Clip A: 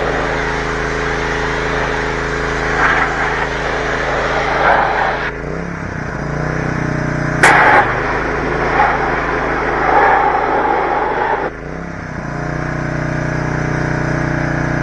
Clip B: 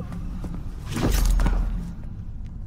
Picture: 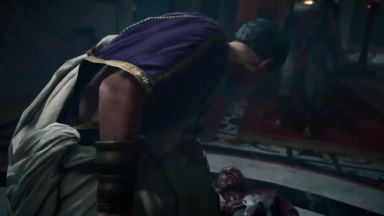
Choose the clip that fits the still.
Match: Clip B